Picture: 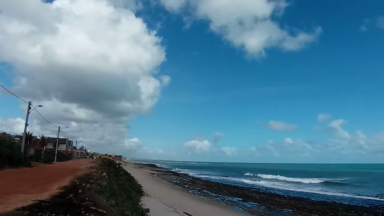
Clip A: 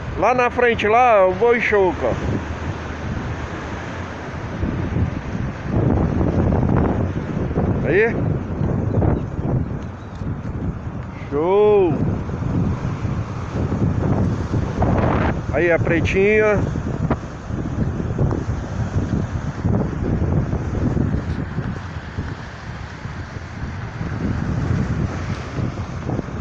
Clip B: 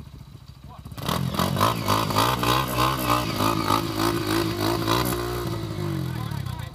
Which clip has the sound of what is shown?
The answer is A